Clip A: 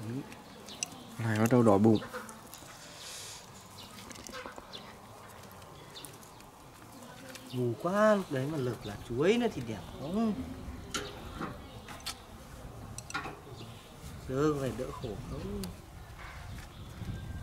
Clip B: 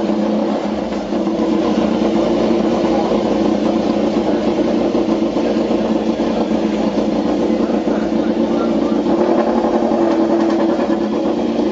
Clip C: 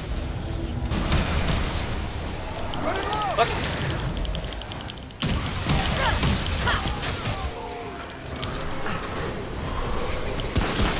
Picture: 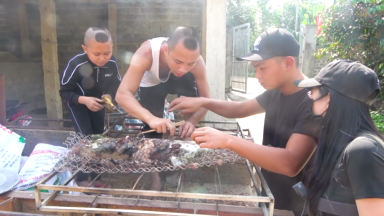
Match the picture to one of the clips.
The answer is A